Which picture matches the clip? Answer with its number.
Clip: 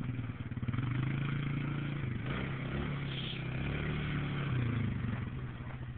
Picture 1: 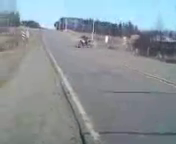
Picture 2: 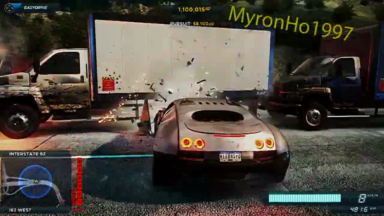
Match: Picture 1